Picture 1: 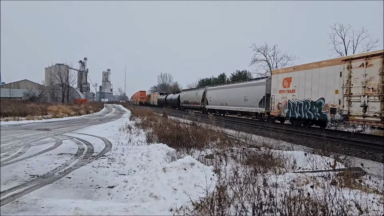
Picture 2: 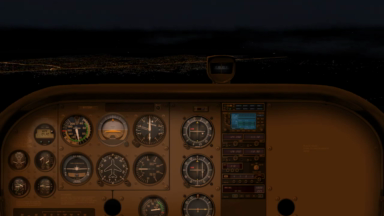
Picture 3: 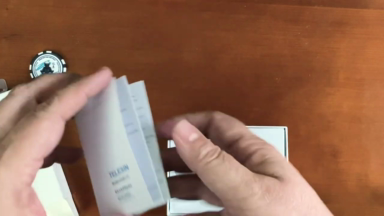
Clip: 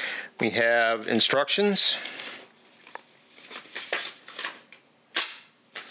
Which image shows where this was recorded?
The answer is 3